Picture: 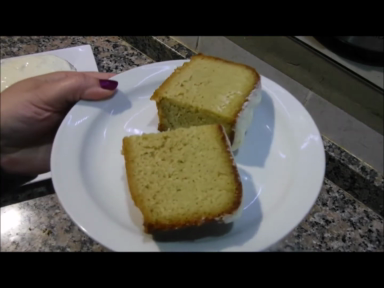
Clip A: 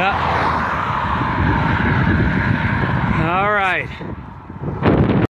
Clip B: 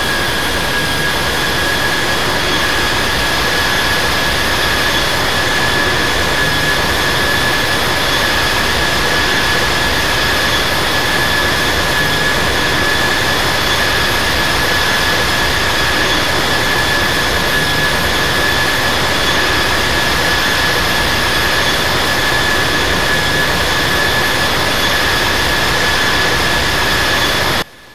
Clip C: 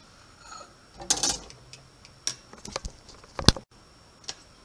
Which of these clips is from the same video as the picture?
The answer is C